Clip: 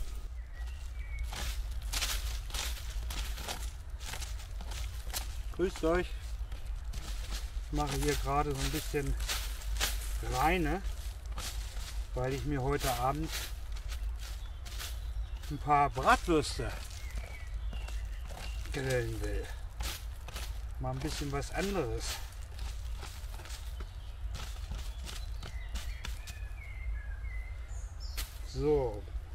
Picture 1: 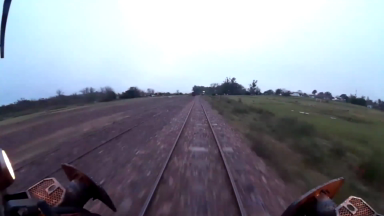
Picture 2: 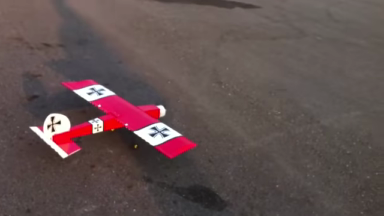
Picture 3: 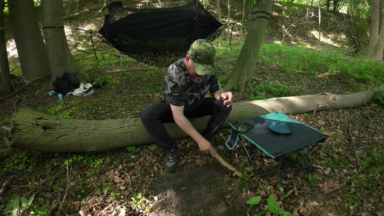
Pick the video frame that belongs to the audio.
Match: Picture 3